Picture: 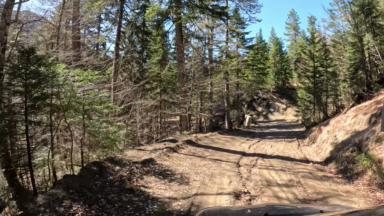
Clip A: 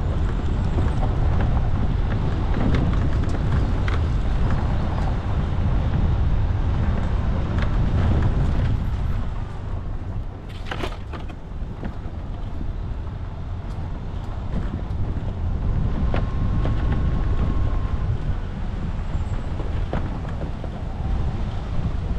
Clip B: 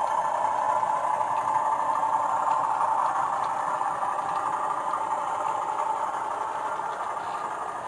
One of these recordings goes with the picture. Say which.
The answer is A